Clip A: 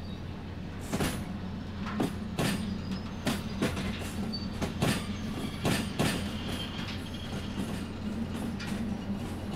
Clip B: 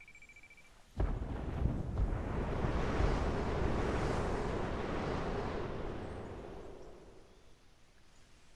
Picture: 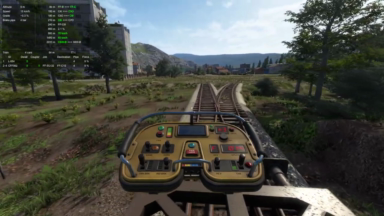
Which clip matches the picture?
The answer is A